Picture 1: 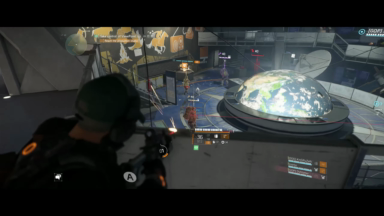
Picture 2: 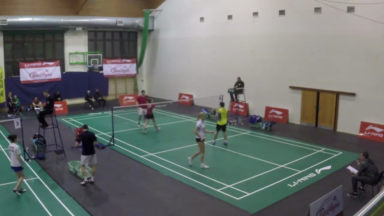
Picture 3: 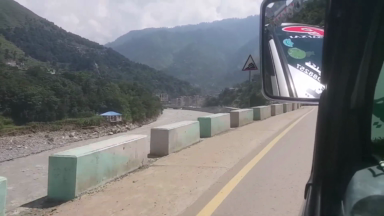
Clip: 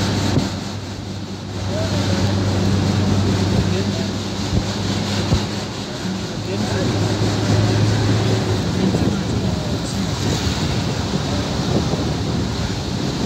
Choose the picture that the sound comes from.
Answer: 3